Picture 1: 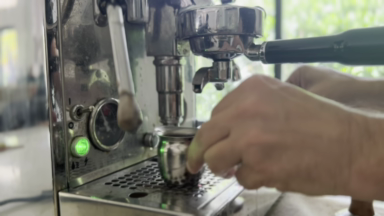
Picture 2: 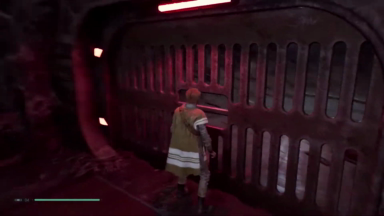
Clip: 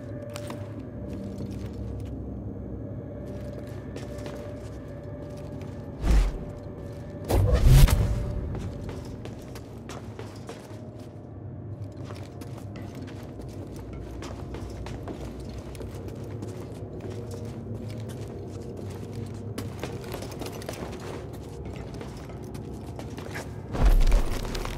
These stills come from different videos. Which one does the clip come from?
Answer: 2